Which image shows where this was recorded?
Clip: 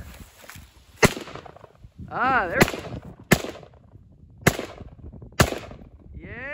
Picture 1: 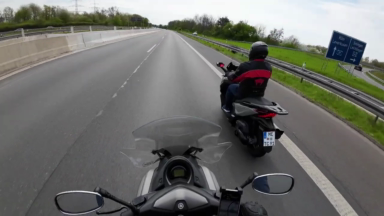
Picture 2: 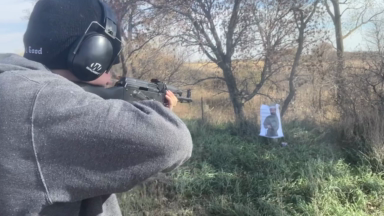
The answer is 2